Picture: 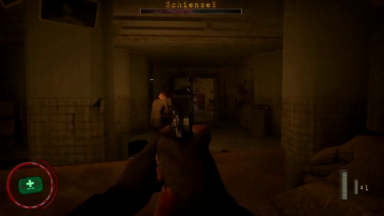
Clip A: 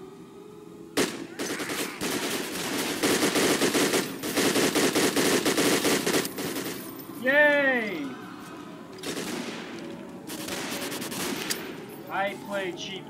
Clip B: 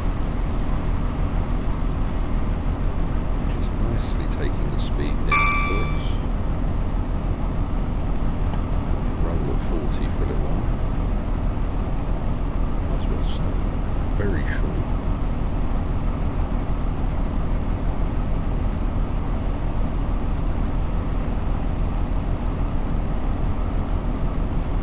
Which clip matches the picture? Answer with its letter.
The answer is A